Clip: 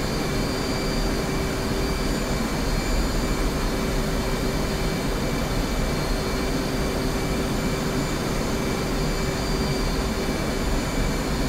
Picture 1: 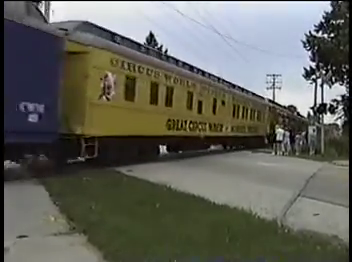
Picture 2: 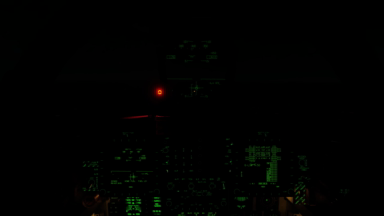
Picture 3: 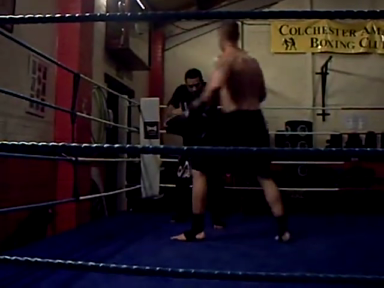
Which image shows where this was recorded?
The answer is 2